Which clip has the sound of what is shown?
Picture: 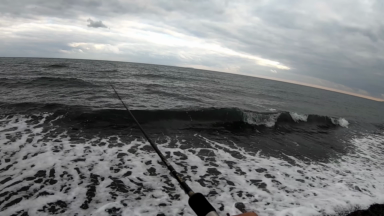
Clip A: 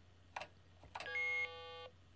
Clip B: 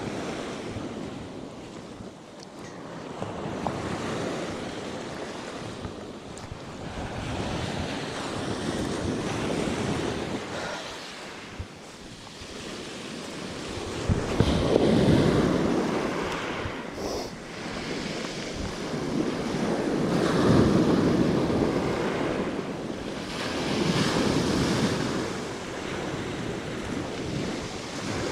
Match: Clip B